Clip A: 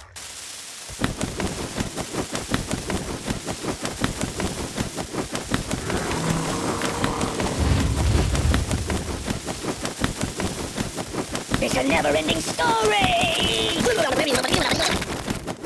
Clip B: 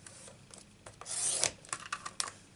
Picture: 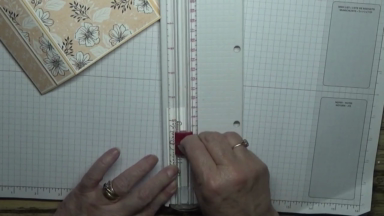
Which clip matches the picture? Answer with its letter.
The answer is B